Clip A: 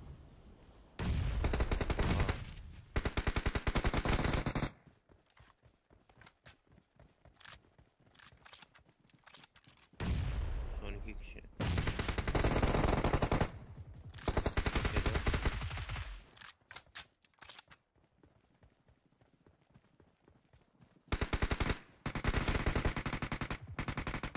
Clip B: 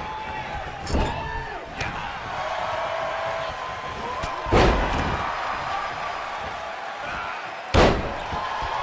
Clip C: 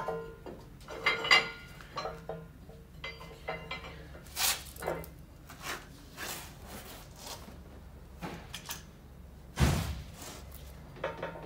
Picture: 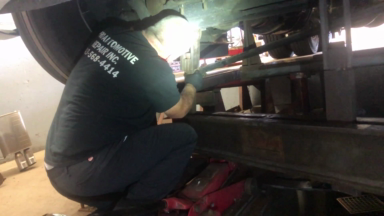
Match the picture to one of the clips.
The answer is C